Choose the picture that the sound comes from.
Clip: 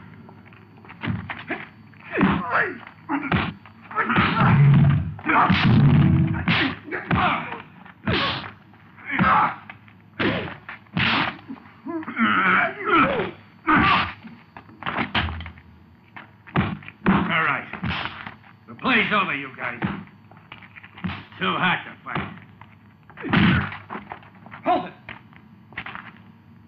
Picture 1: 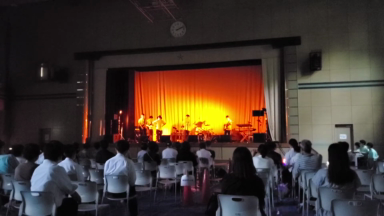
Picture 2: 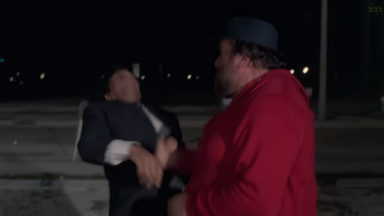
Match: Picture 2